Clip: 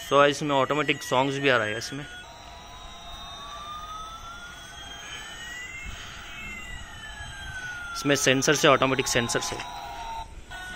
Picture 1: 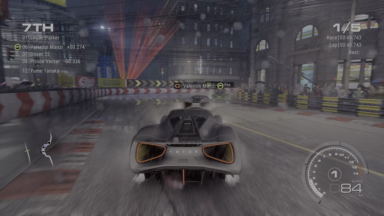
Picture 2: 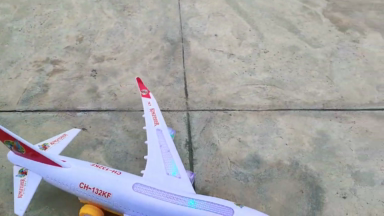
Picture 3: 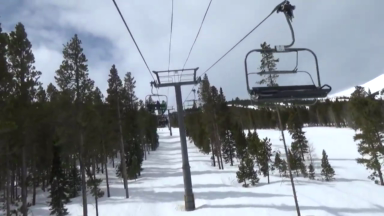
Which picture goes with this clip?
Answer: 2